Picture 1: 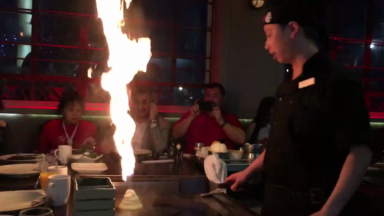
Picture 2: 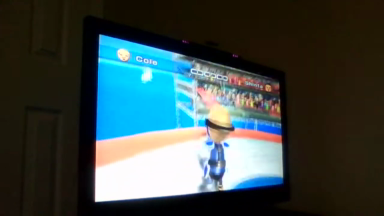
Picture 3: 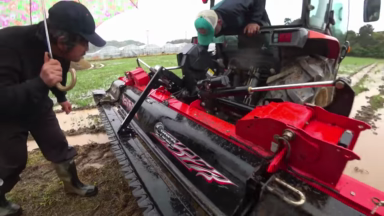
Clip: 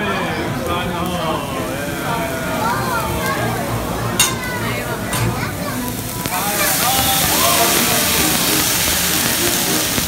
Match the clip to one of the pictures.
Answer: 1